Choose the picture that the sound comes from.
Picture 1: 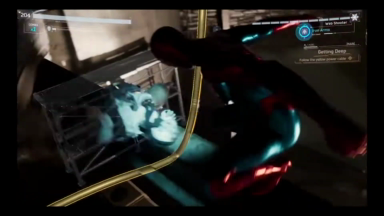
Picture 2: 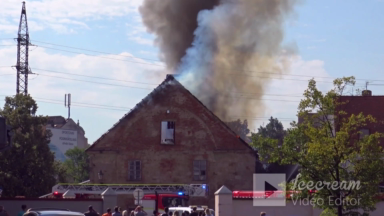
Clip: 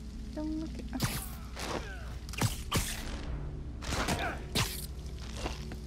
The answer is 1